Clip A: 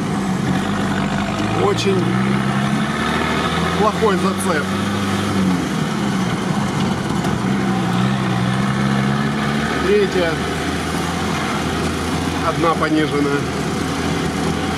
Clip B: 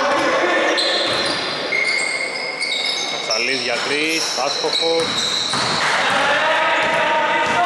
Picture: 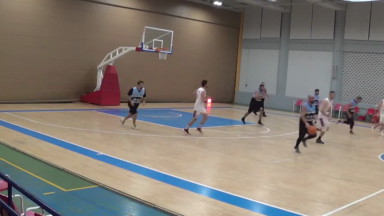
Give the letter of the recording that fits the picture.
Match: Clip B